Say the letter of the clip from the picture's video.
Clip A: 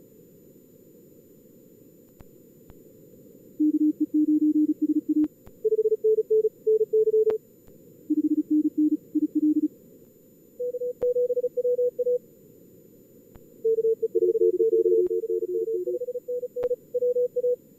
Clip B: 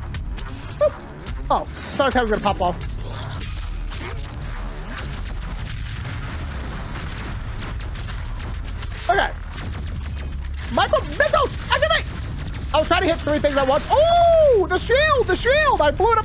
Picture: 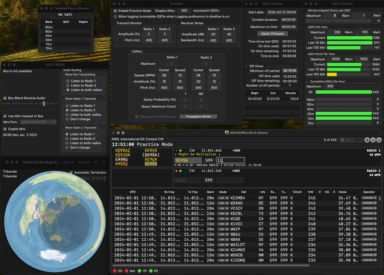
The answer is A